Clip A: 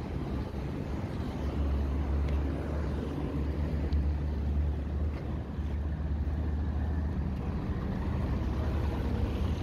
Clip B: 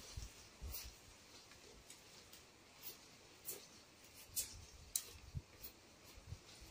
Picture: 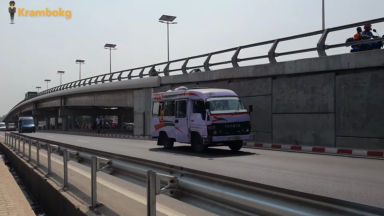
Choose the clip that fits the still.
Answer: A